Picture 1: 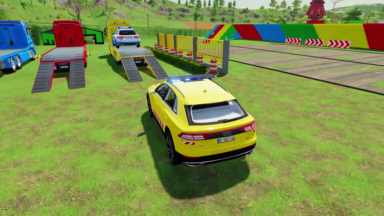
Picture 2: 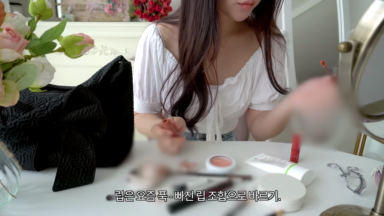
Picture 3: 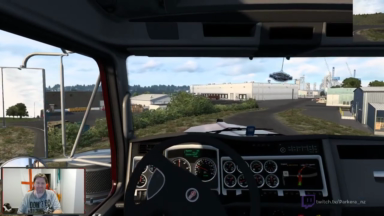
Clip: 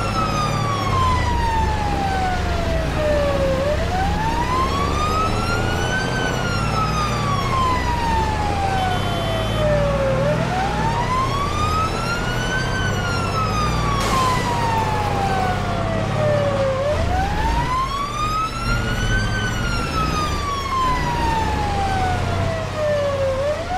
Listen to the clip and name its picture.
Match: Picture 1